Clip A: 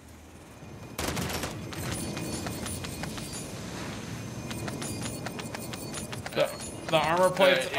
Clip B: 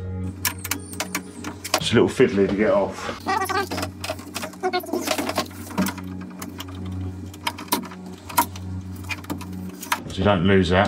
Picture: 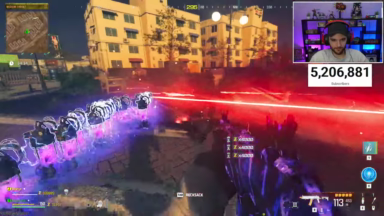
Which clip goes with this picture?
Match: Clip A